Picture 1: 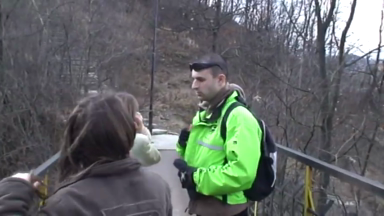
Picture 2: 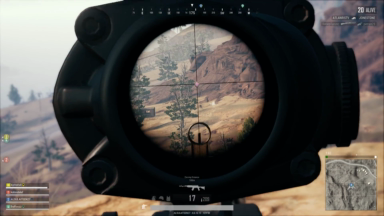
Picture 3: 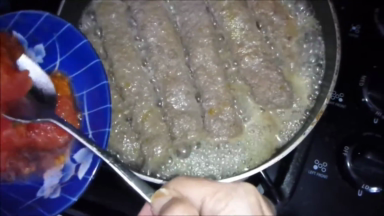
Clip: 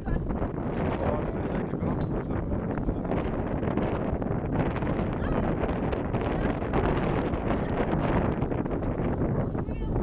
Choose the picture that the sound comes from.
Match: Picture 1